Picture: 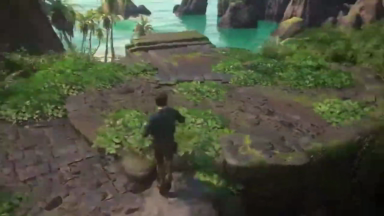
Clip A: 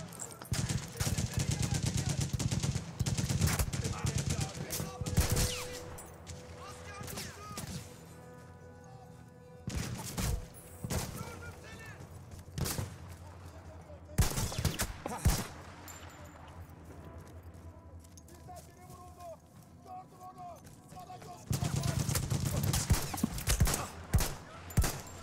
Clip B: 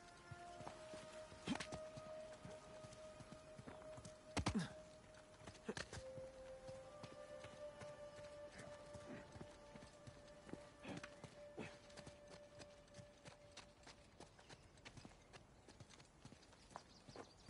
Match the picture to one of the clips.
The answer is B